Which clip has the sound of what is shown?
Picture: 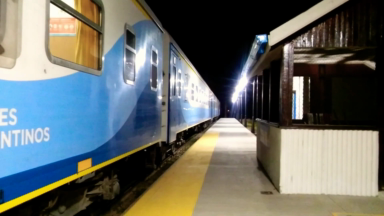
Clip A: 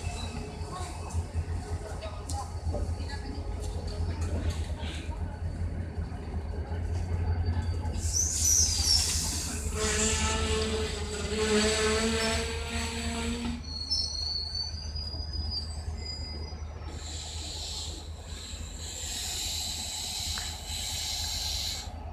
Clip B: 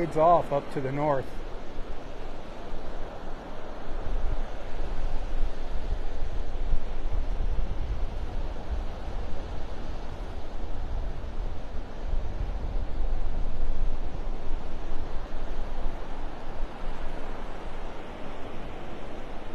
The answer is A